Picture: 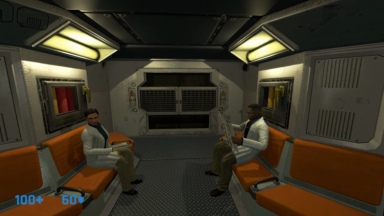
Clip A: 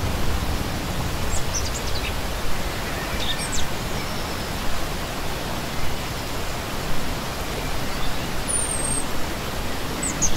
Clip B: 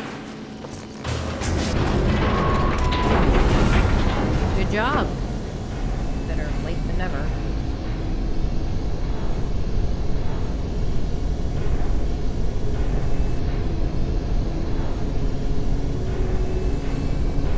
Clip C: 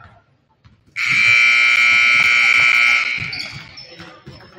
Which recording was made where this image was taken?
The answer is B